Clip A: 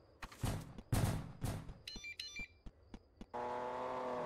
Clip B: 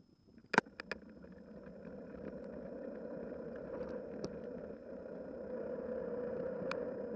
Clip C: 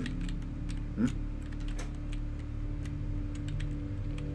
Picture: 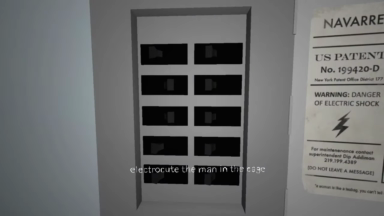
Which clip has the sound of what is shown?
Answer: C